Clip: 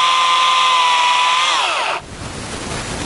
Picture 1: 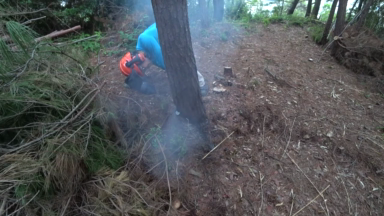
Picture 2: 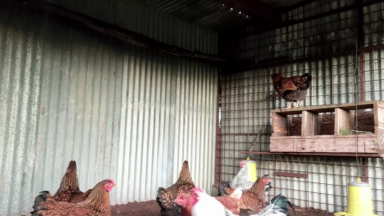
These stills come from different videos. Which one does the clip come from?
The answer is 1